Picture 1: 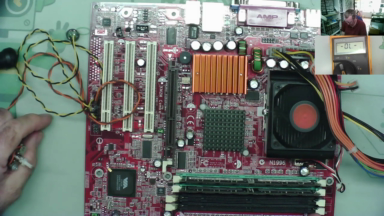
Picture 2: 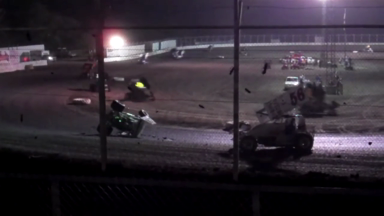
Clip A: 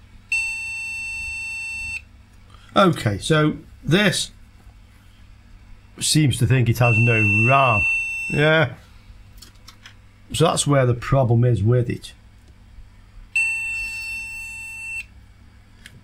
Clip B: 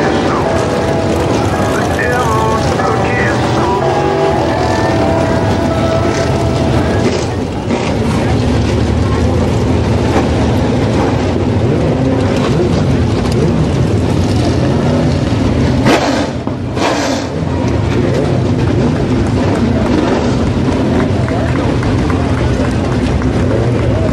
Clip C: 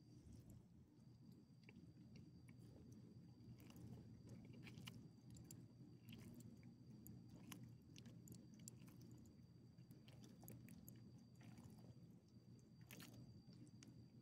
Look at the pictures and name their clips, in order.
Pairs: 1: A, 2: B